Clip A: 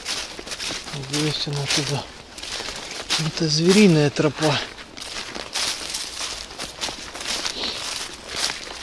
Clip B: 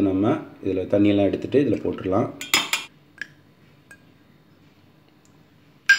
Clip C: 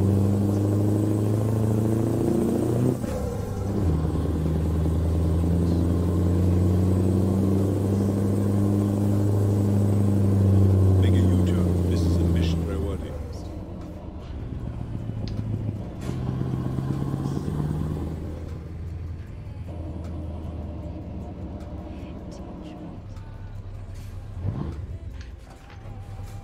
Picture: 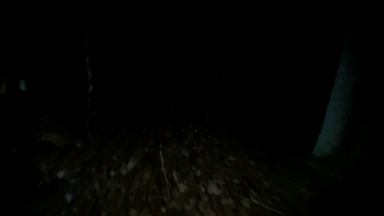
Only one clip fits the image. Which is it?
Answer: A